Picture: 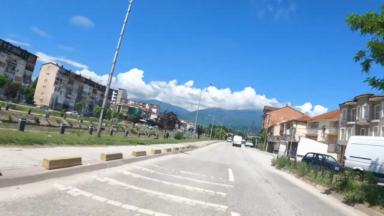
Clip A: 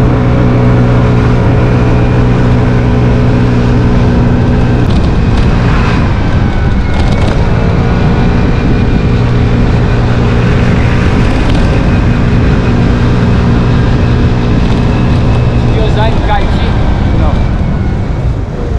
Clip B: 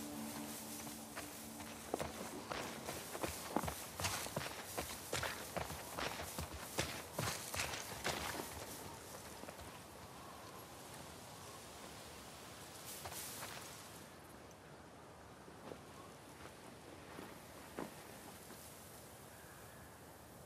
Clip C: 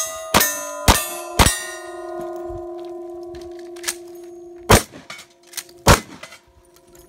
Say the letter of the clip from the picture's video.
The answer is A